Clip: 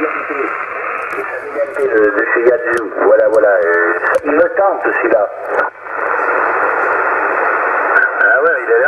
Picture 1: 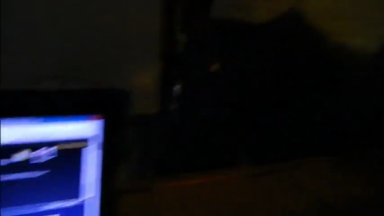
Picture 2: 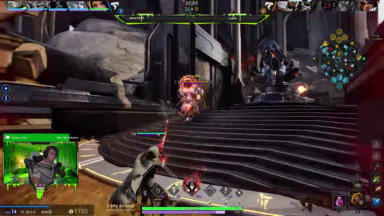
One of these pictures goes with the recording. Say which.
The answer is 1